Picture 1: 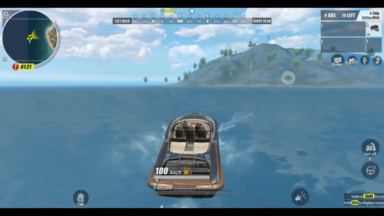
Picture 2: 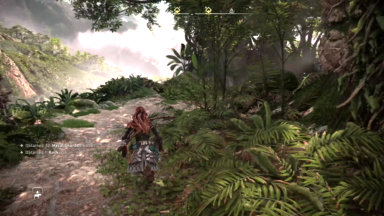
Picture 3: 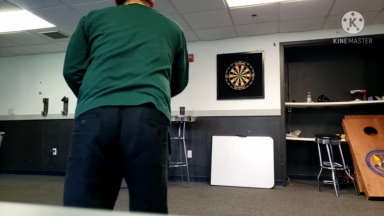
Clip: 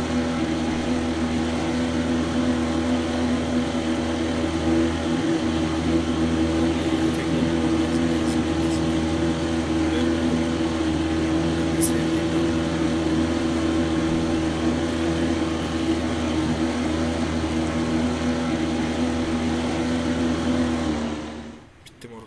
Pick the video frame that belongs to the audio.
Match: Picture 1